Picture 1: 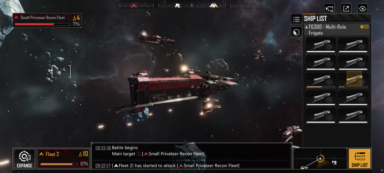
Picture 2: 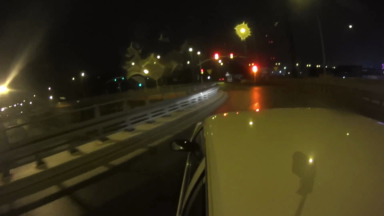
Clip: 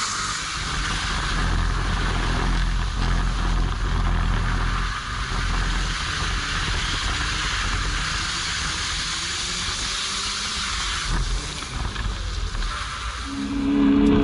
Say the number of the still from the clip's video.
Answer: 2